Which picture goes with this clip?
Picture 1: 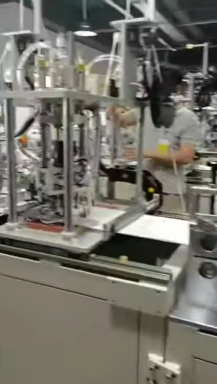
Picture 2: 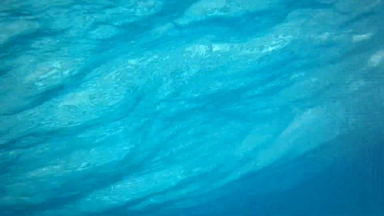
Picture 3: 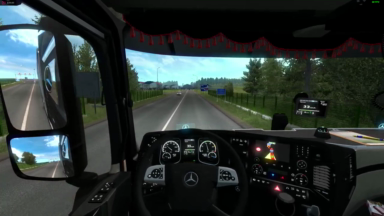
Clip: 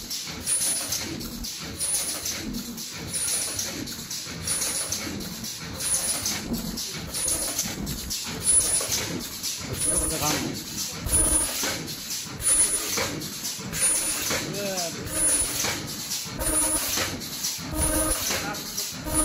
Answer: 1